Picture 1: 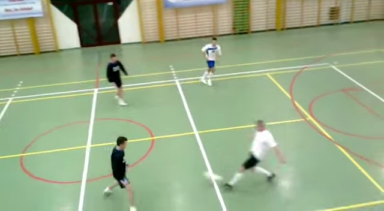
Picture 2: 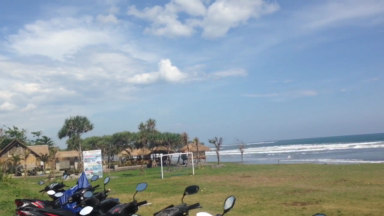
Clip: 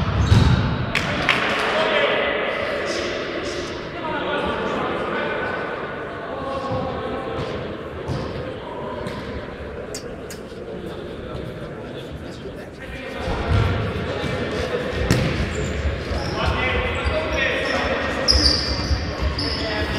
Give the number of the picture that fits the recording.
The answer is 1